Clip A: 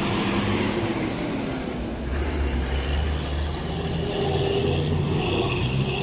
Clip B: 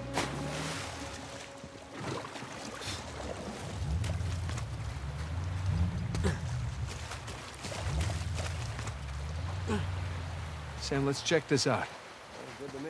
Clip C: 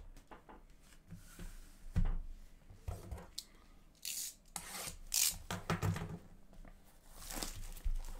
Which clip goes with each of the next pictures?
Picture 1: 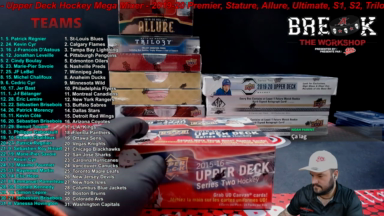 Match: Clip C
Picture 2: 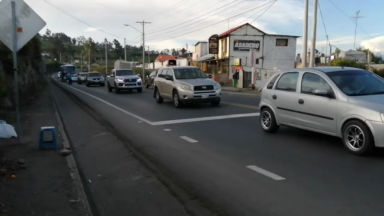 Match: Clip A